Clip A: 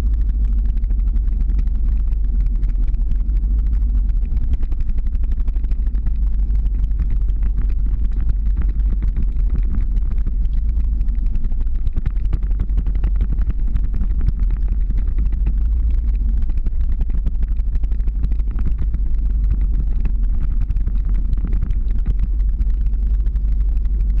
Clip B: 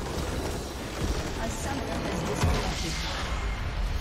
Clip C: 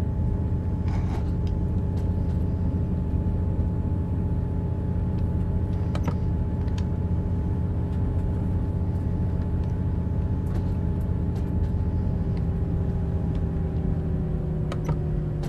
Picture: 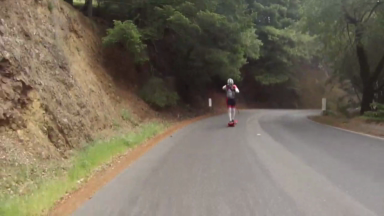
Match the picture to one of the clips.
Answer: A